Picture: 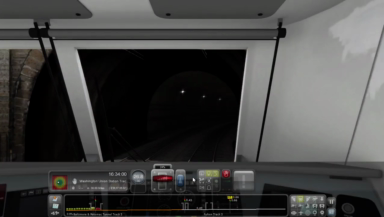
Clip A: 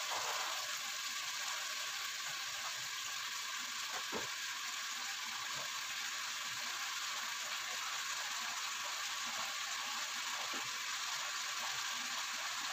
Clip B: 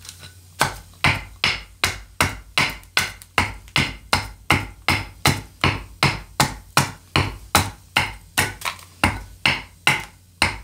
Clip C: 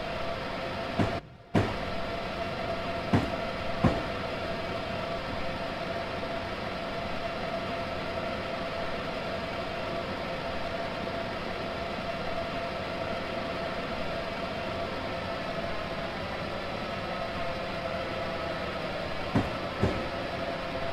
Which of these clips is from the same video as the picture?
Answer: C